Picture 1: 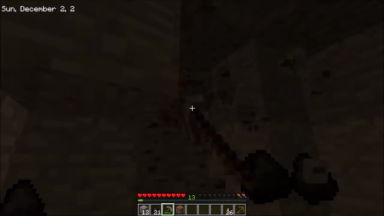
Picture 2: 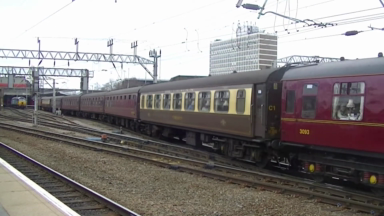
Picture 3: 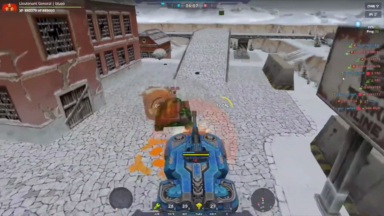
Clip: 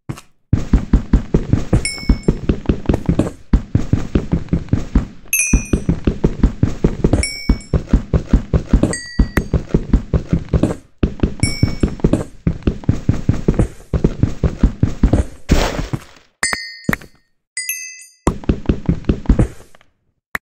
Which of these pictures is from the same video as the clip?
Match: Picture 1